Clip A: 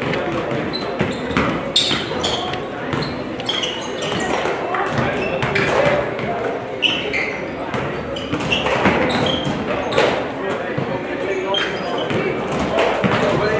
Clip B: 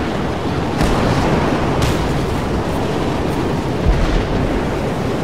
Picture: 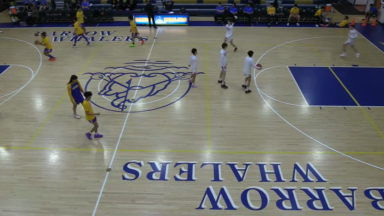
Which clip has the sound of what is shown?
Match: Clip A